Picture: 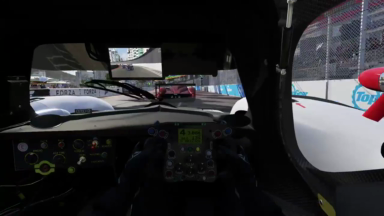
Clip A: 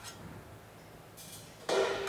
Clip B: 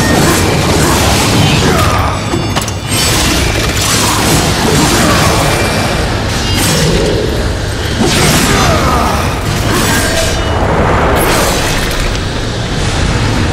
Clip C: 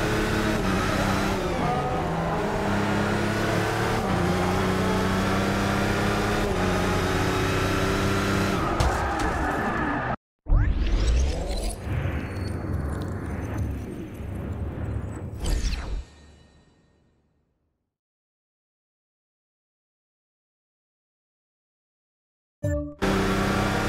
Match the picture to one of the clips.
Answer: C